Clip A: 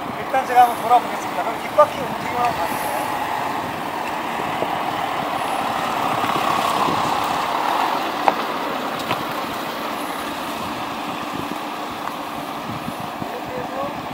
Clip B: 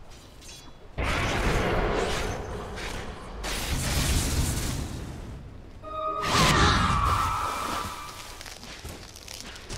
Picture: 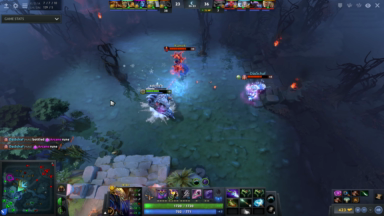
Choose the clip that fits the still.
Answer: B